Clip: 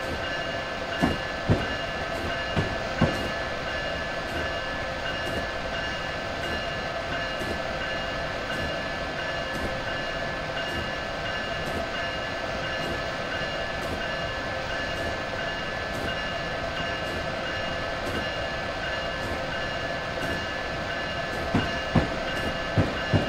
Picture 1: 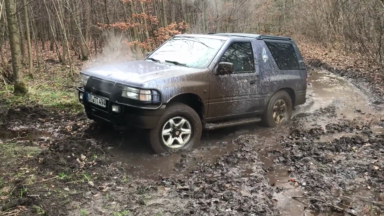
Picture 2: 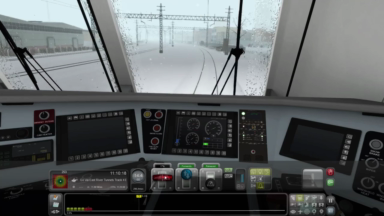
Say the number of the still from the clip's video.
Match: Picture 2